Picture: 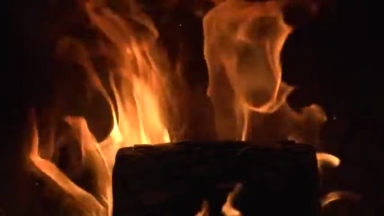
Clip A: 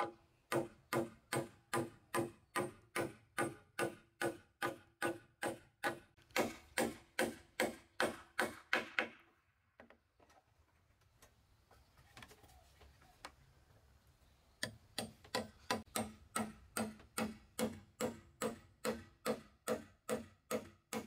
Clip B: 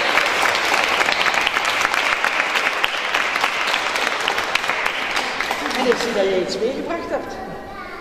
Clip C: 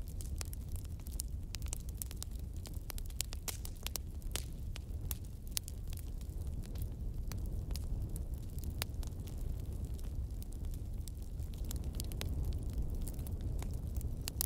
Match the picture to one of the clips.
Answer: C